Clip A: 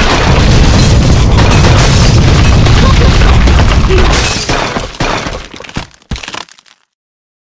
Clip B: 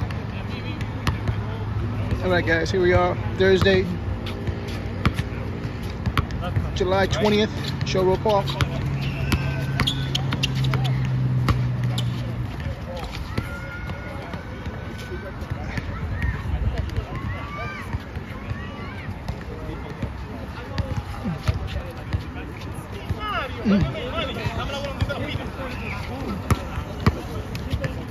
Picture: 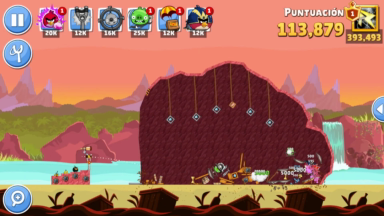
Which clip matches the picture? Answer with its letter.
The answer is A